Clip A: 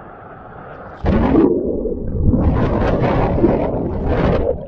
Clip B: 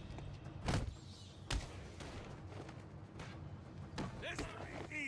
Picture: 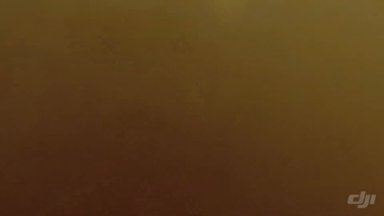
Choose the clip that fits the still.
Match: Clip A